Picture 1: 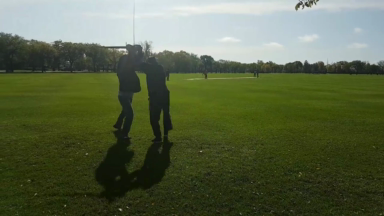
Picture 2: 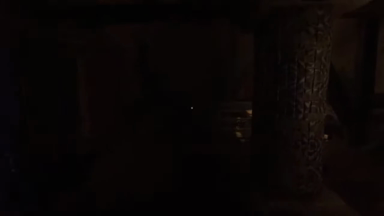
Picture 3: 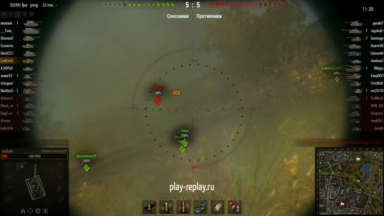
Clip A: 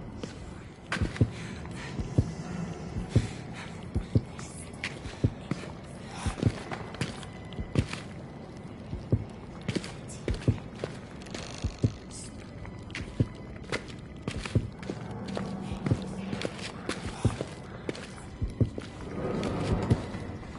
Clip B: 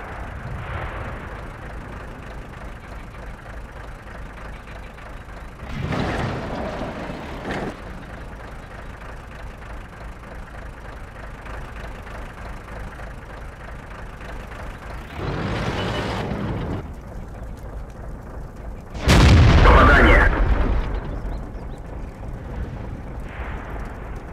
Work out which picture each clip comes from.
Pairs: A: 2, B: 3